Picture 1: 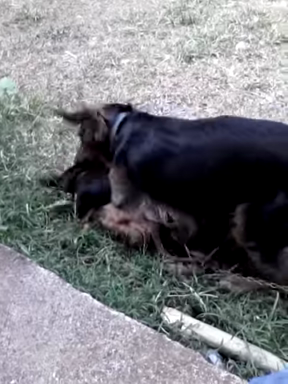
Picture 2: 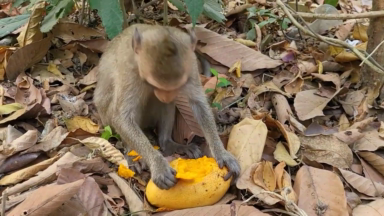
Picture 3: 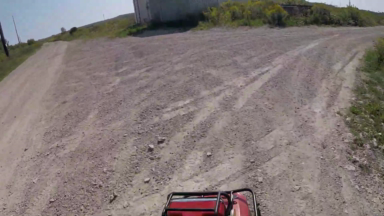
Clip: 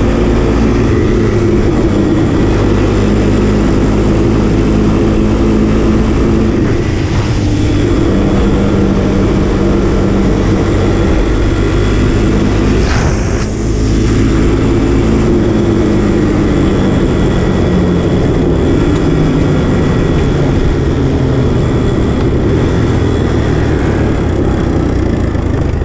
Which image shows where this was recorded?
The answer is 3